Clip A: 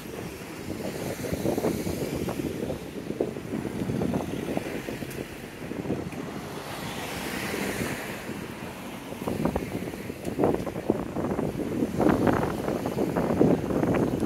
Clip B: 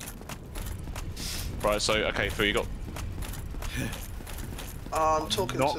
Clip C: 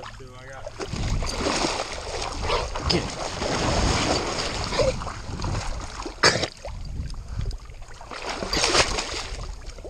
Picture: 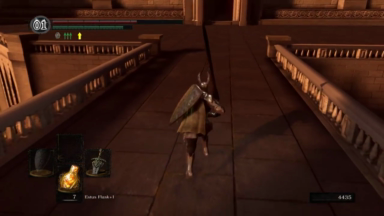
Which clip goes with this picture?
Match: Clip B